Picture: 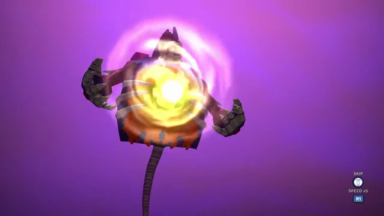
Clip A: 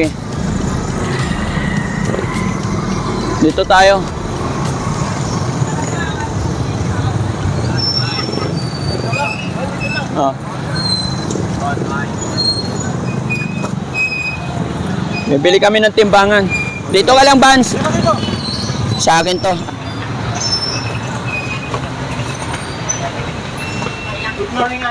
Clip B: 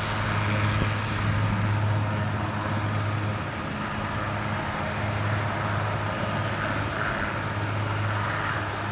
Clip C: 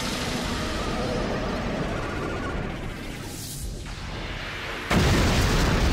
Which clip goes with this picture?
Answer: C